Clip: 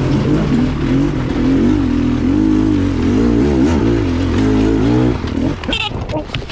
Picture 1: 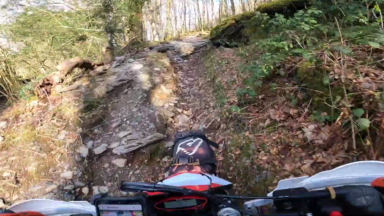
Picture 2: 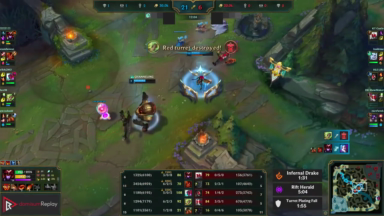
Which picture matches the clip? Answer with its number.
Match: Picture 1